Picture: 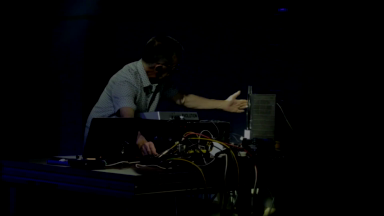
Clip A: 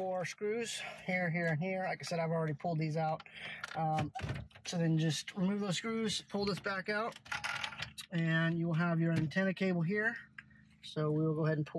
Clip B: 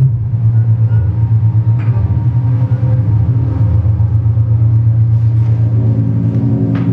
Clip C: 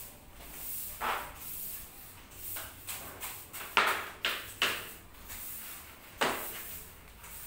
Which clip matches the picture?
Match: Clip B